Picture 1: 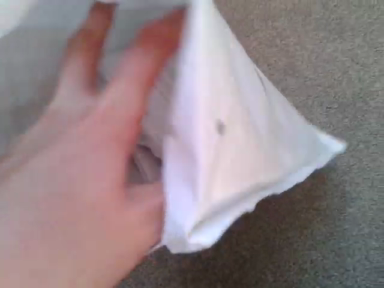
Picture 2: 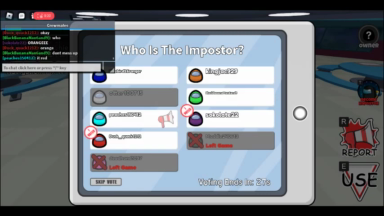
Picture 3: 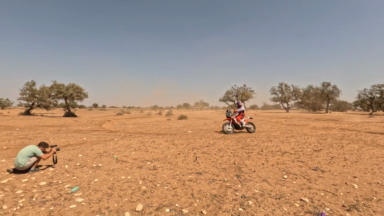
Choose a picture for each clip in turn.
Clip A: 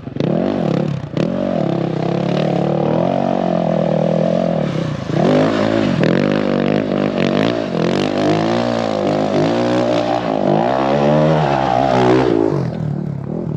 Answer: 3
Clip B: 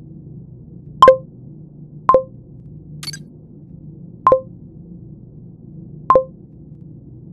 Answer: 2